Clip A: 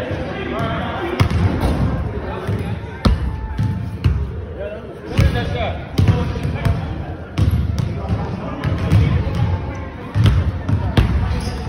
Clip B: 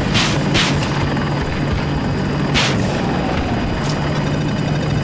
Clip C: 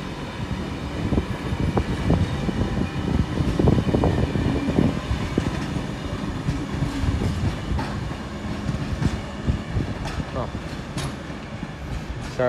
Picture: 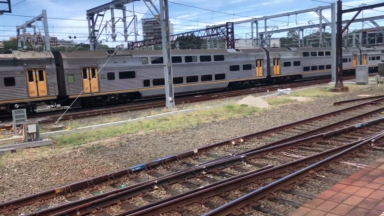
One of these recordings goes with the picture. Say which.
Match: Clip C